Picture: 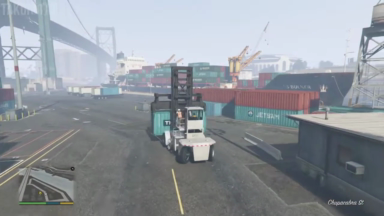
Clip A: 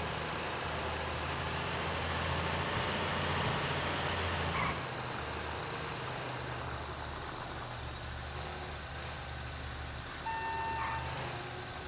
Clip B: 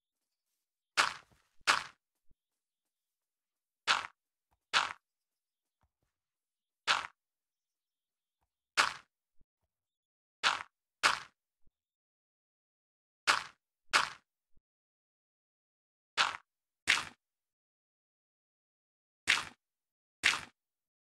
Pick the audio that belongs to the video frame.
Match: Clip A